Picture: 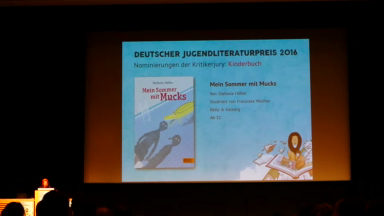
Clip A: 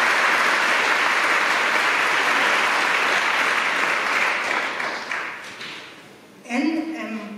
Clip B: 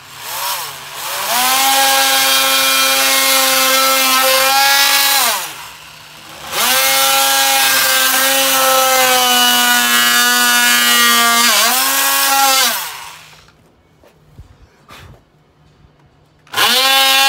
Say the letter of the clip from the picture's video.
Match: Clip A